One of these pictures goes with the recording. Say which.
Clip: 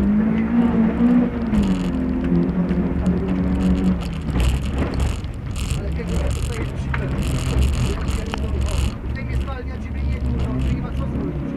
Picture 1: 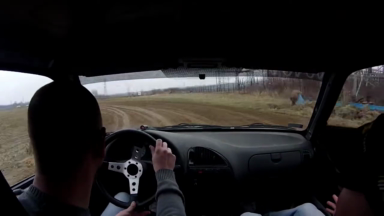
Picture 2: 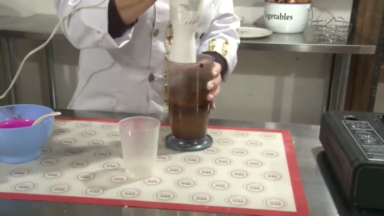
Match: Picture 1